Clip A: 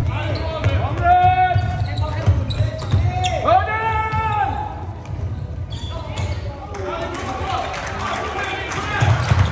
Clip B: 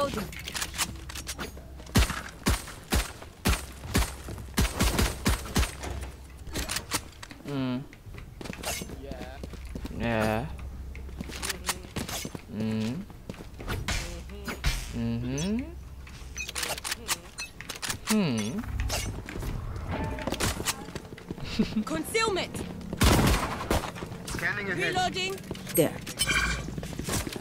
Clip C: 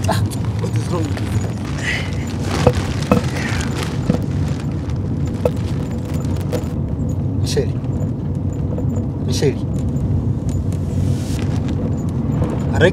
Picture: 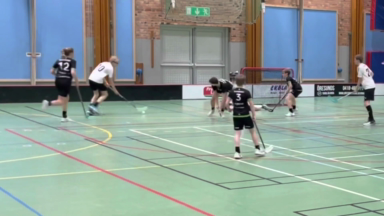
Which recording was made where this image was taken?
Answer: A